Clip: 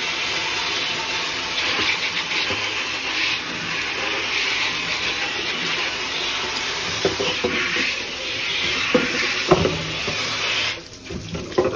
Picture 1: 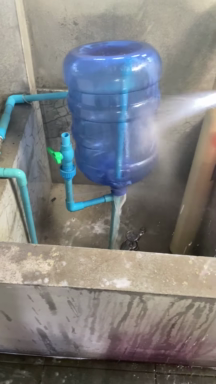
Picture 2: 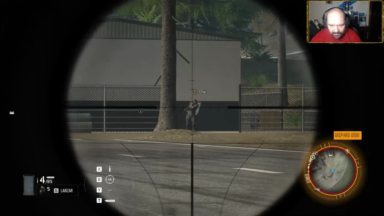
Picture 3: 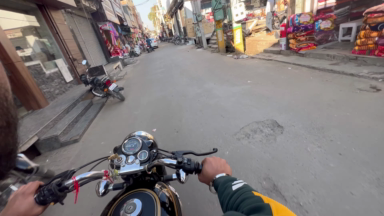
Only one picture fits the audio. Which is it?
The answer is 1